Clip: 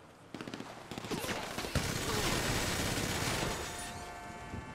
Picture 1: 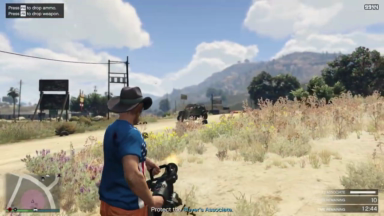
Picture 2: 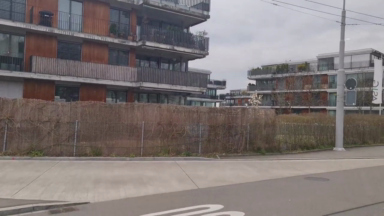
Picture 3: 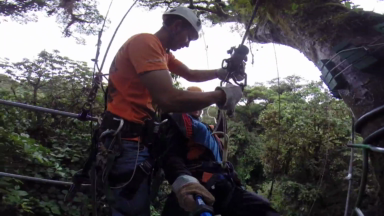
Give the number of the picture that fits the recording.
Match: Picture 1